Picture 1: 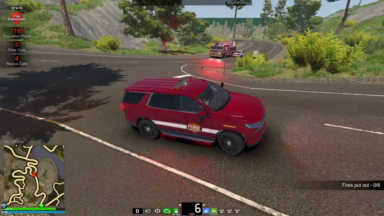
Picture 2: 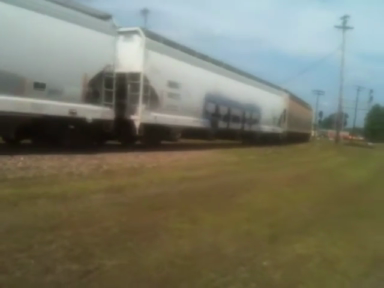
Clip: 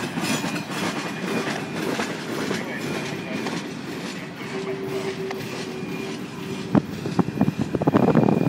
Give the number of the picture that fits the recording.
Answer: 2